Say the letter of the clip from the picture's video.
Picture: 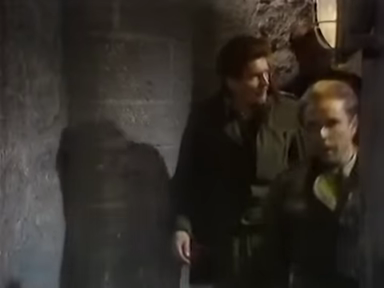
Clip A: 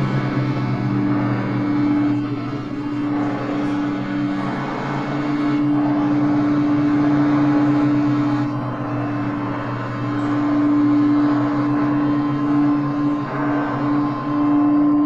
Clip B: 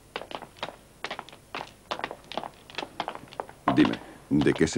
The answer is B